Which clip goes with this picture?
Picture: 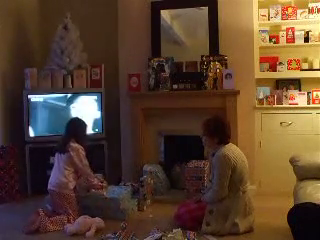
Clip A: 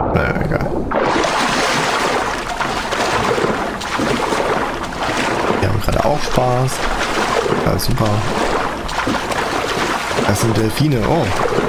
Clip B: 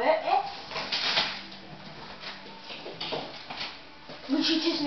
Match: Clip B